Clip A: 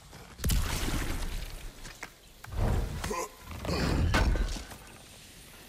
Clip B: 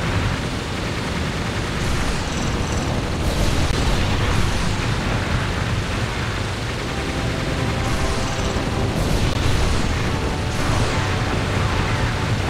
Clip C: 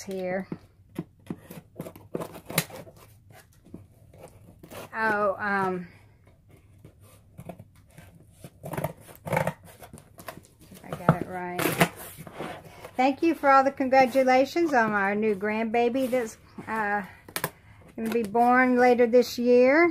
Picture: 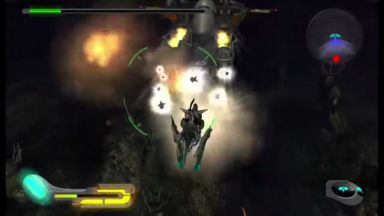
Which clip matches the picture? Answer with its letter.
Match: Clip B